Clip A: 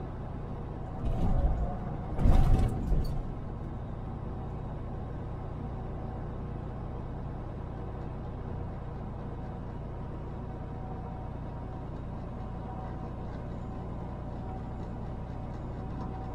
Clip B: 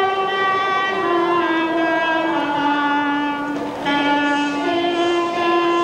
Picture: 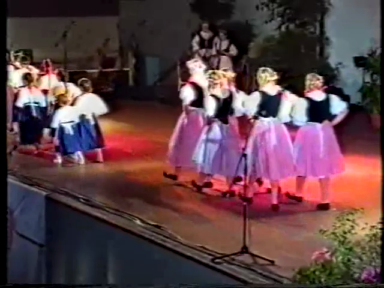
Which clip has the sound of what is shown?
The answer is B